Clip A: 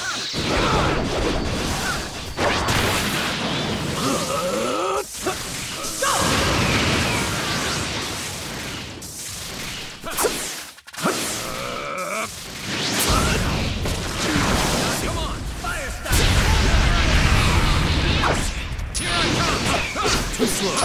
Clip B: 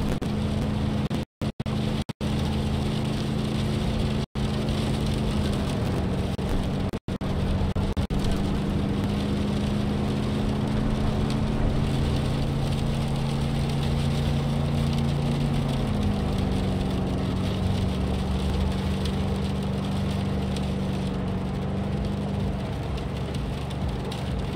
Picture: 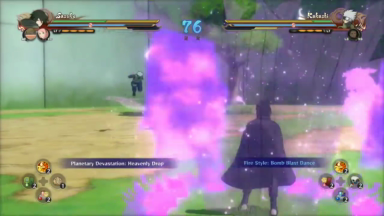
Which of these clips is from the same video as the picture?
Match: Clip A